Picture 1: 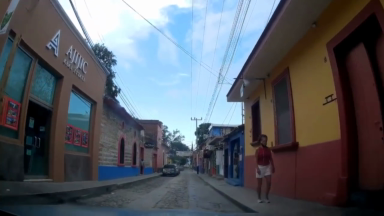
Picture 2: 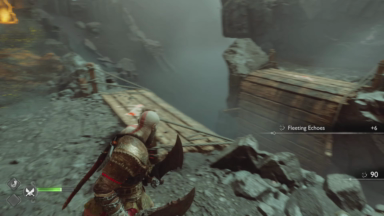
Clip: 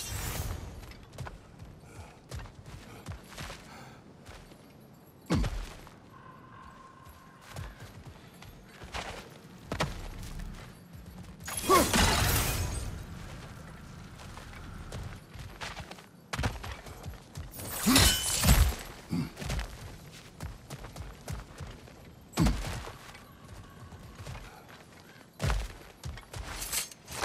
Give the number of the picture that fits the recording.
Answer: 2